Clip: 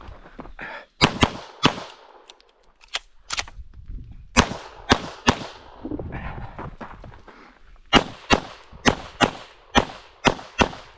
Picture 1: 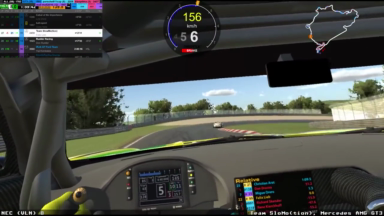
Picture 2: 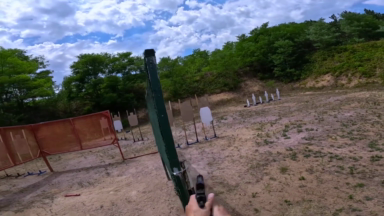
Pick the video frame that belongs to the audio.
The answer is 2